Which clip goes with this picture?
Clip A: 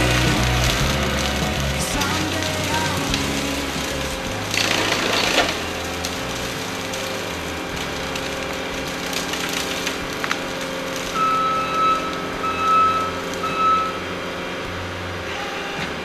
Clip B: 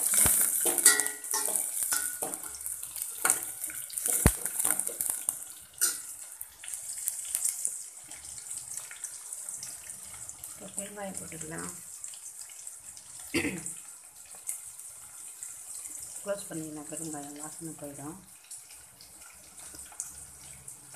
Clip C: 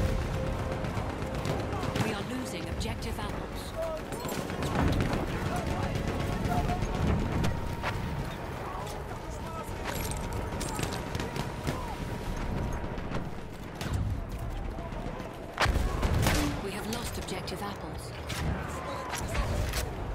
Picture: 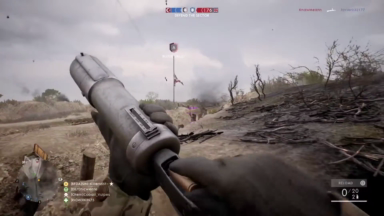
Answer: C